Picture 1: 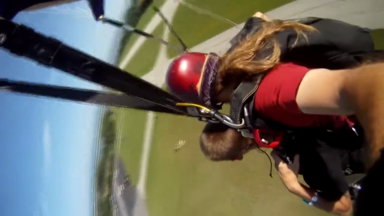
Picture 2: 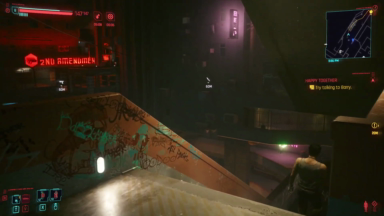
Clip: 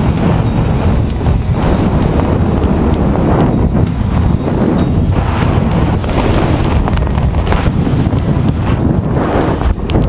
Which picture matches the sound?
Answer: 1